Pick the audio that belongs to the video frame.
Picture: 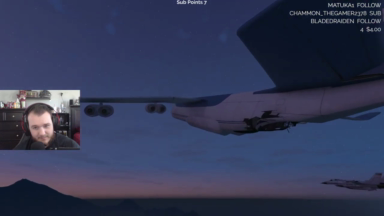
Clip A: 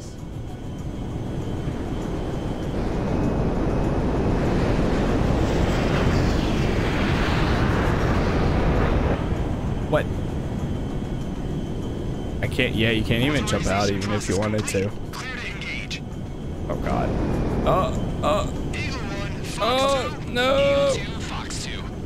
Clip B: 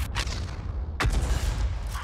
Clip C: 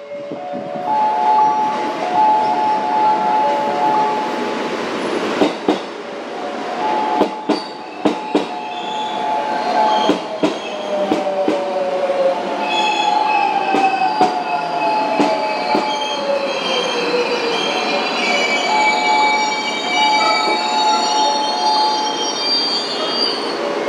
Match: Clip A